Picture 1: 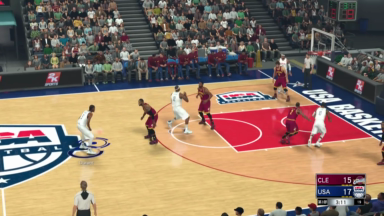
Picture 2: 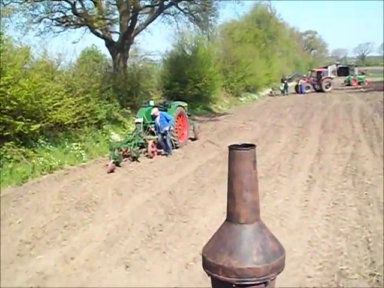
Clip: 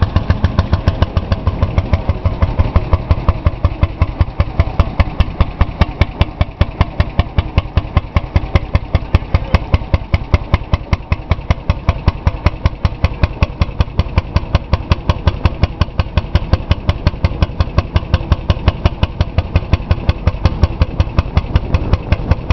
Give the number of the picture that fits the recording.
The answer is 2